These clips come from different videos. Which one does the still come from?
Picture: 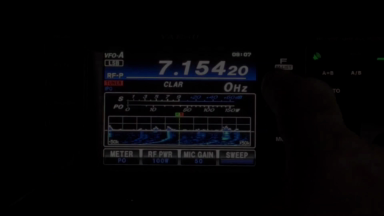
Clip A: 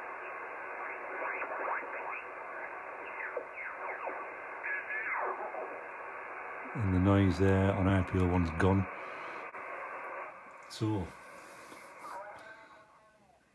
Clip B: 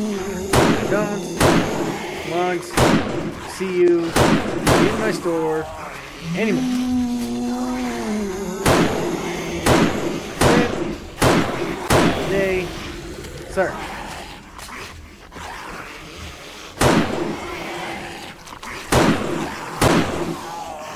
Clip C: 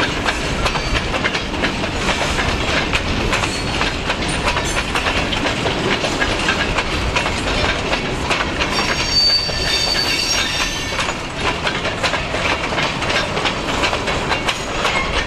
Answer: A